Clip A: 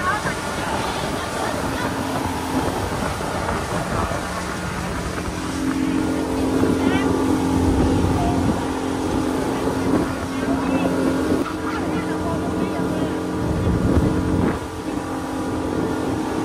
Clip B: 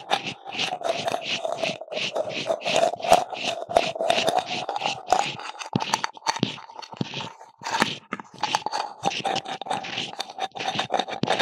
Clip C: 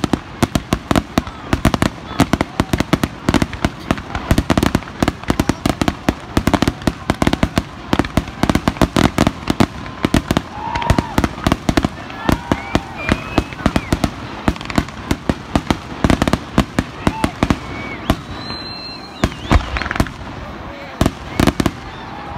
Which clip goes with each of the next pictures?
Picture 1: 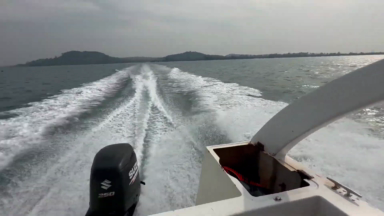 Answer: A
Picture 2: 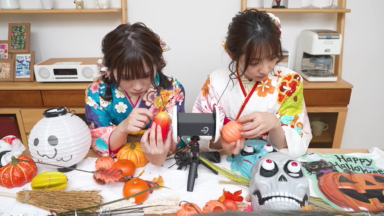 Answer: B